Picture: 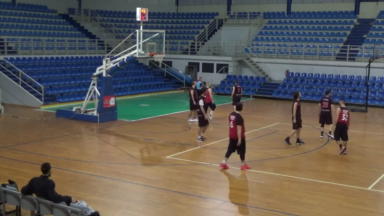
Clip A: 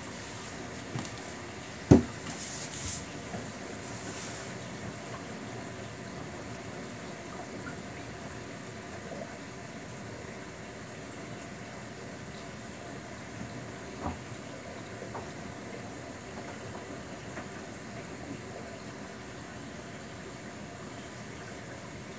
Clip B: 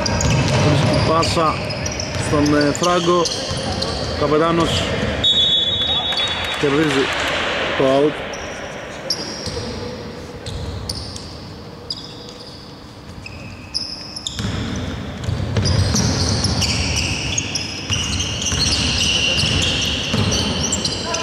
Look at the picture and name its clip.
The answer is B